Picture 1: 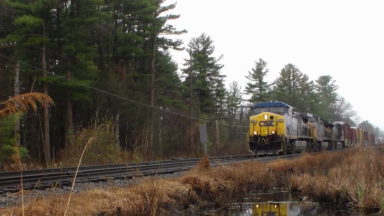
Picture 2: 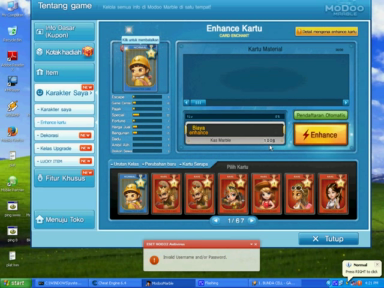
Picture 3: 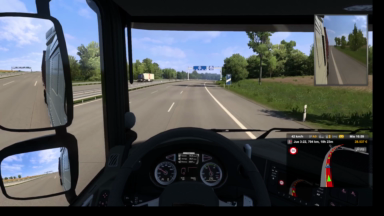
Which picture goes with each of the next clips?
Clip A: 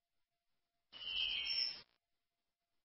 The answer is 2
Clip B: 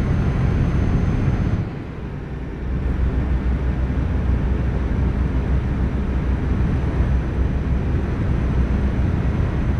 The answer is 3